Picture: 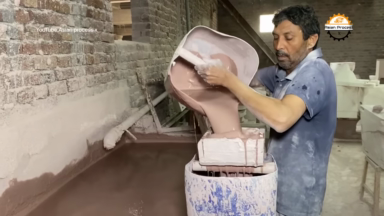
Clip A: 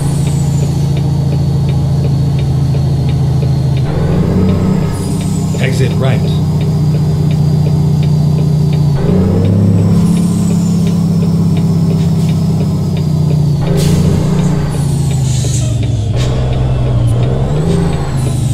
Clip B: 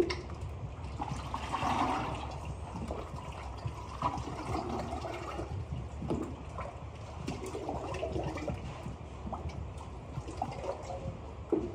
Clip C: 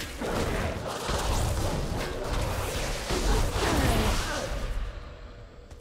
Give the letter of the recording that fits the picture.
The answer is B